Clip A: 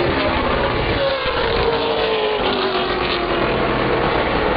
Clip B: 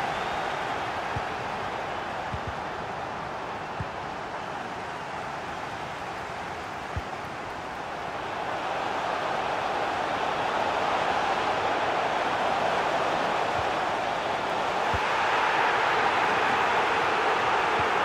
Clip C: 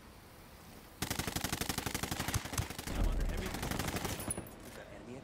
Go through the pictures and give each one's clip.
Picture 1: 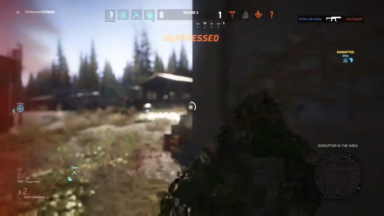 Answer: C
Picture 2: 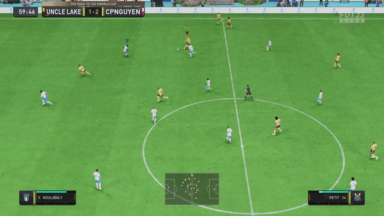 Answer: B